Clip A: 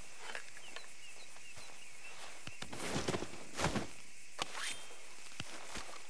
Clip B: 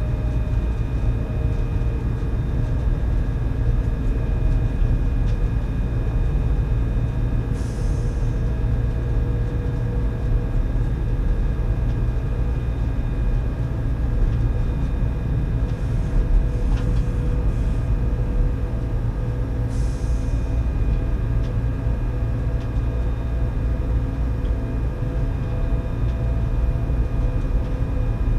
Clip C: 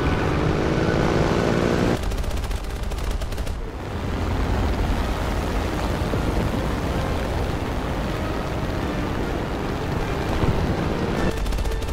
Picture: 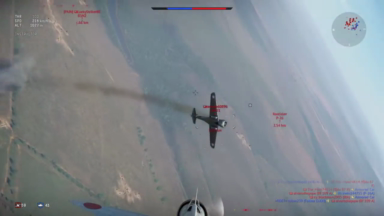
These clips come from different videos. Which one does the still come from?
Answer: C